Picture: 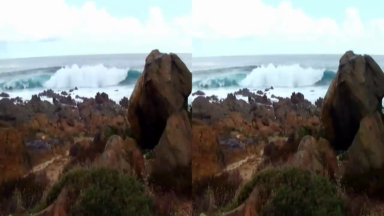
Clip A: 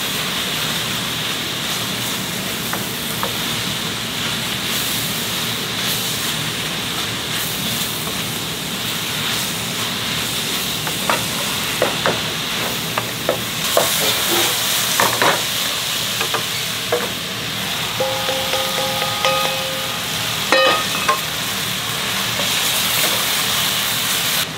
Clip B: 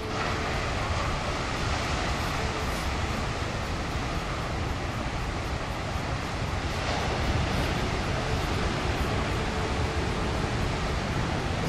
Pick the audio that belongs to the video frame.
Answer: B